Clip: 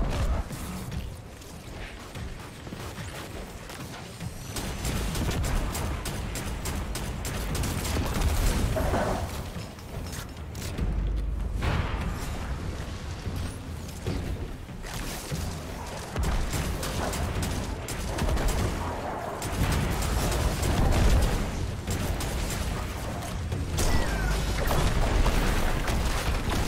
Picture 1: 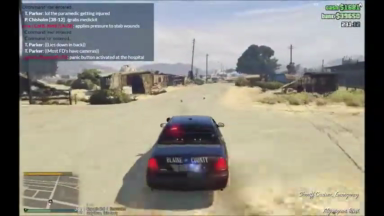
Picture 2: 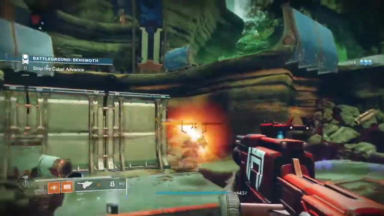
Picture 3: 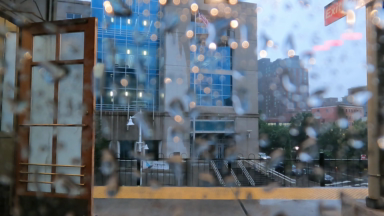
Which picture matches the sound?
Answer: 2